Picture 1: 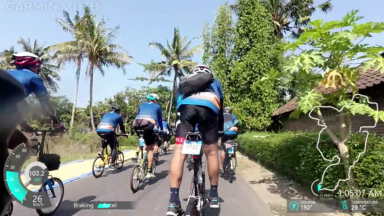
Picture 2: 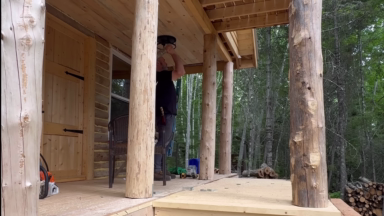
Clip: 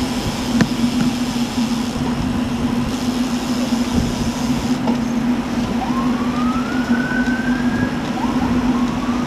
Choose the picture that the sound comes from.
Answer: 1